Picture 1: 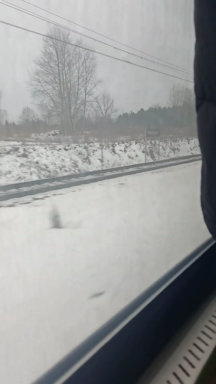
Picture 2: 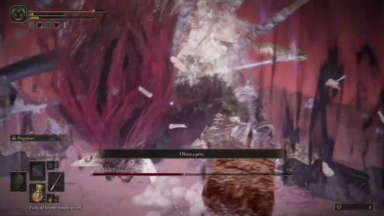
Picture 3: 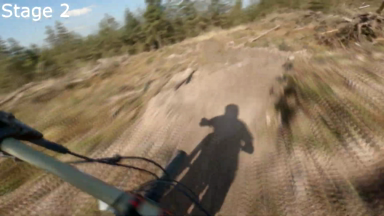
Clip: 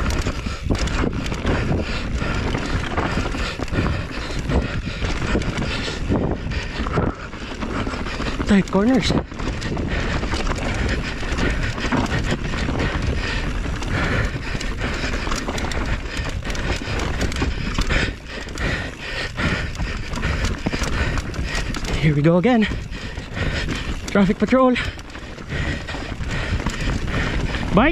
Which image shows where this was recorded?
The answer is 3